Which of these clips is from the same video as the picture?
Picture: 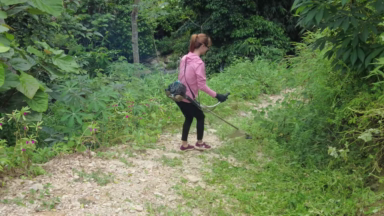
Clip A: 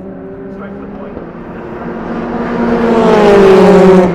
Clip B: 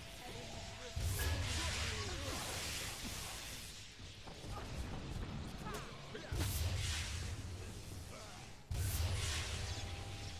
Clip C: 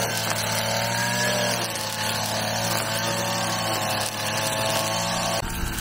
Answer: C